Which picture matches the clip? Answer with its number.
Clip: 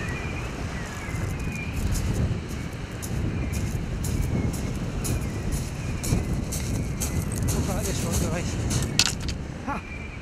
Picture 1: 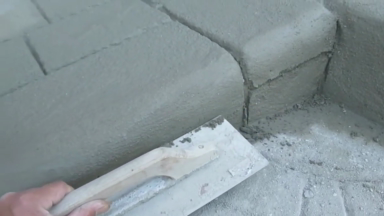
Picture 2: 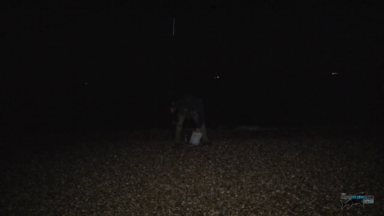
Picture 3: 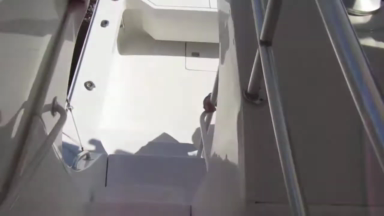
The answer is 2